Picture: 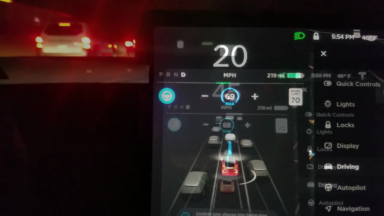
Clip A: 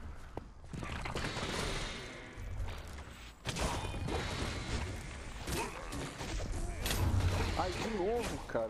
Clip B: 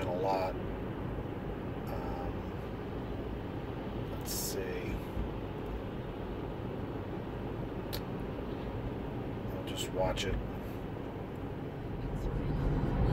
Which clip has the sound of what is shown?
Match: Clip B